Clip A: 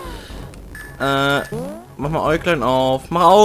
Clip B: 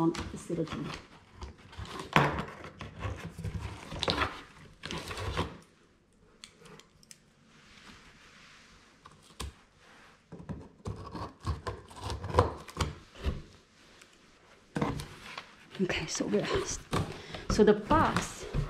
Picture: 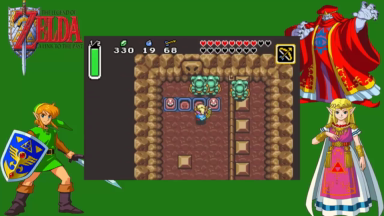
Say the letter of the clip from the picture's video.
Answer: A